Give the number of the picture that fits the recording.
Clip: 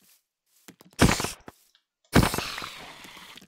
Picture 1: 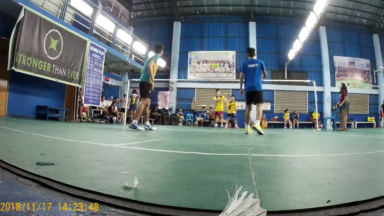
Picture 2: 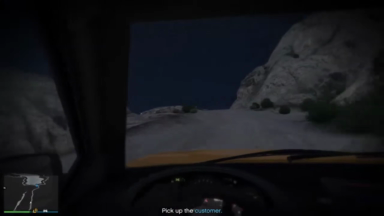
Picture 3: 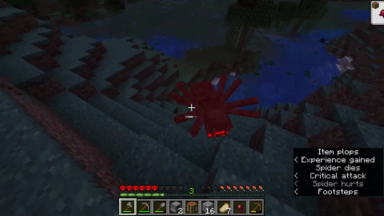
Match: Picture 3